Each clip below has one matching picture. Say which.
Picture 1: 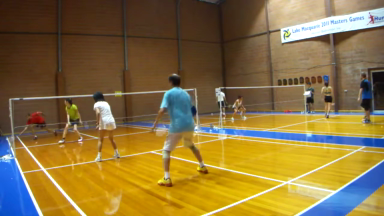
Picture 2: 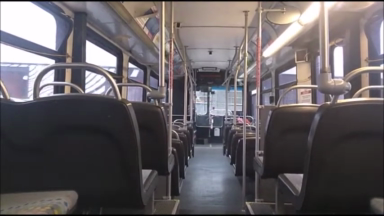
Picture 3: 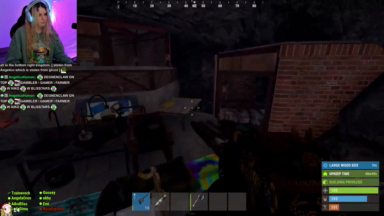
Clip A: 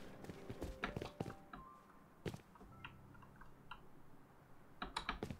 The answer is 3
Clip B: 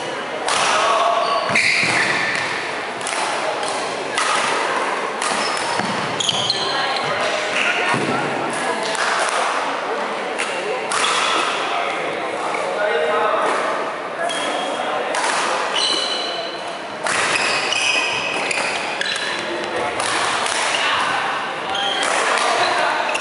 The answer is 1